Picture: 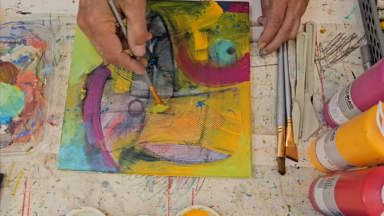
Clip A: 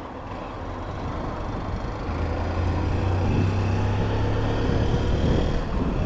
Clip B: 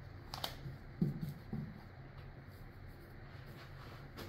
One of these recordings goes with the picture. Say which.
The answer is B